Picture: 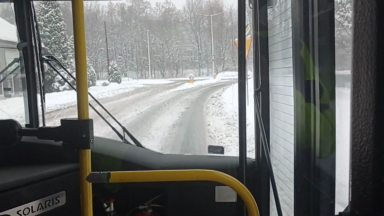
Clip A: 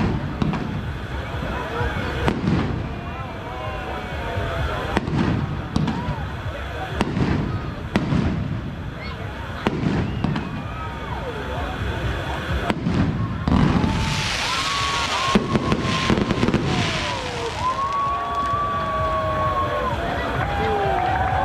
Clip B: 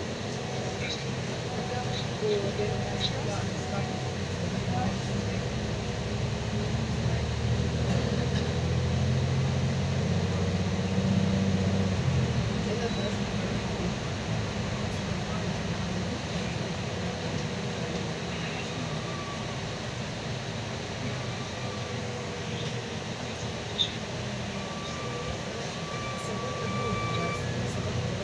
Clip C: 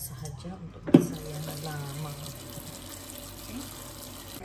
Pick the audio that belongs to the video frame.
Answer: B